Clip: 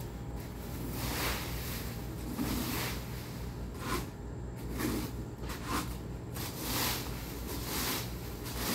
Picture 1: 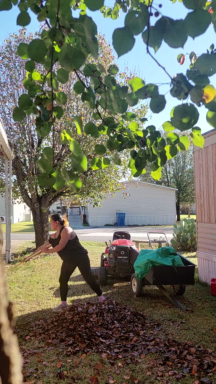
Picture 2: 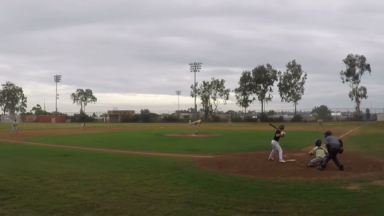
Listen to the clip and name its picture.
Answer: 1